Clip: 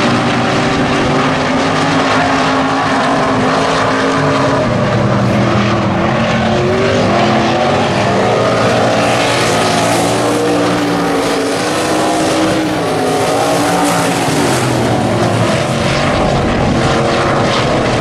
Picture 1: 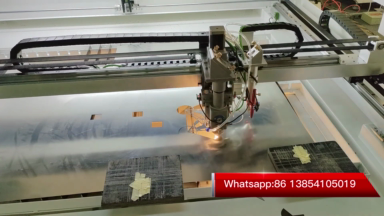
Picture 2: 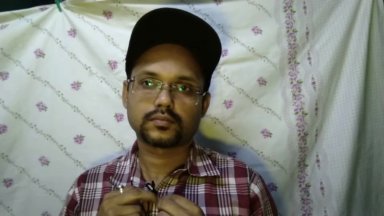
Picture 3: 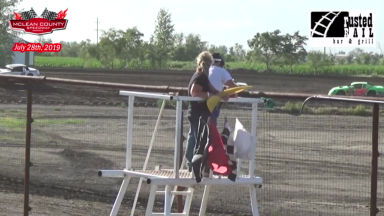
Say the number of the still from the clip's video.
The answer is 3